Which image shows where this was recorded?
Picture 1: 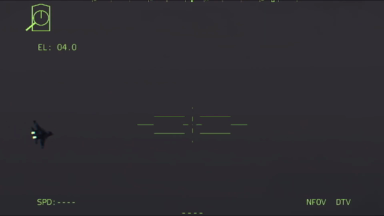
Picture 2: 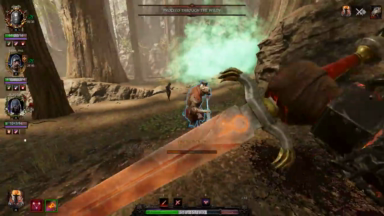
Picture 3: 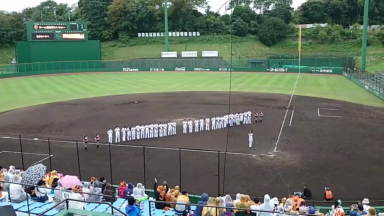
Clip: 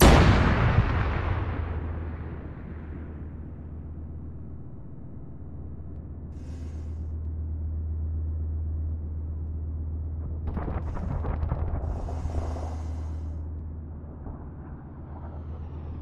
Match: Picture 1